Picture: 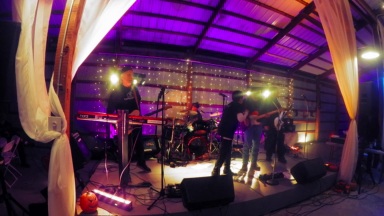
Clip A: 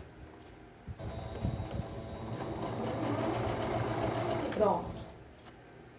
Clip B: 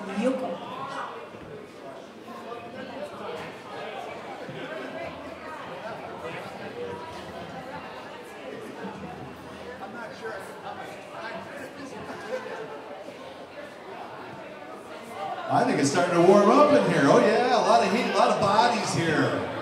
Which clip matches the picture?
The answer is B